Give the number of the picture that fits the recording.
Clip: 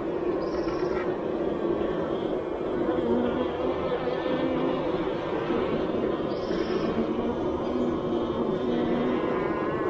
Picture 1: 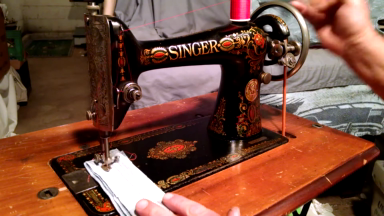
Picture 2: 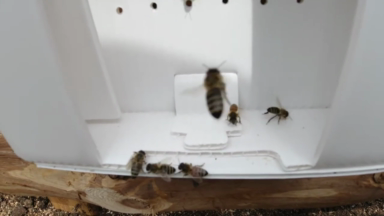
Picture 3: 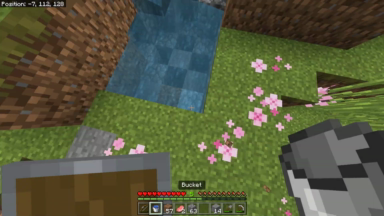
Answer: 2